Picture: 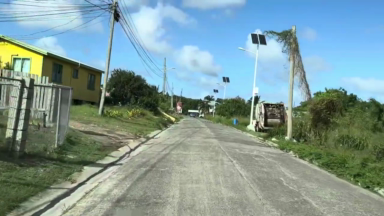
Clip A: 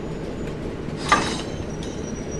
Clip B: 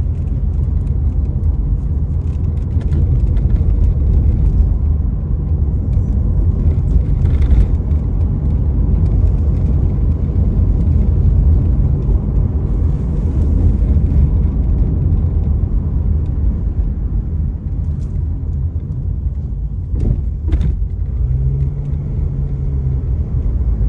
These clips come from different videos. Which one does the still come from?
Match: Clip B